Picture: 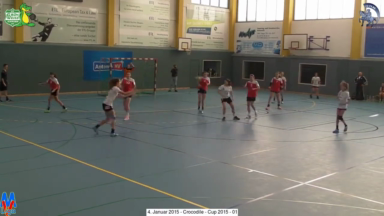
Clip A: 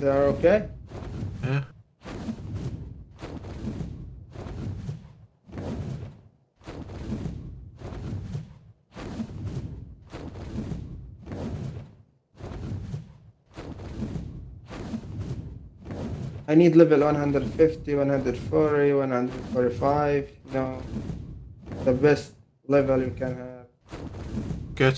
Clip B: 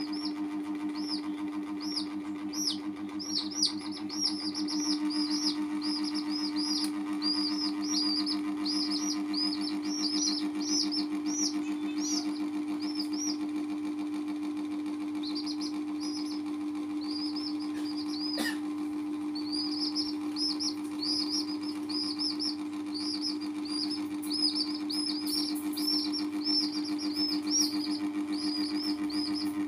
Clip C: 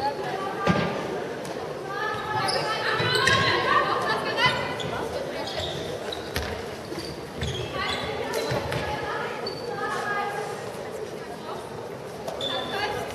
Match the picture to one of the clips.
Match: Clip C